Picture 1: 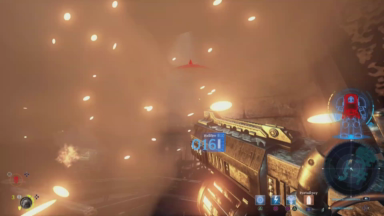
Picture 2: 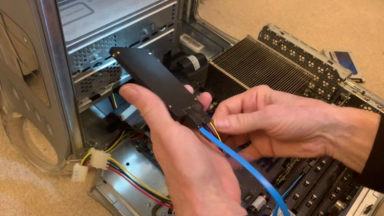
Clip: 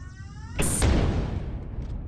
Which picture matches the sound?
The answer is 1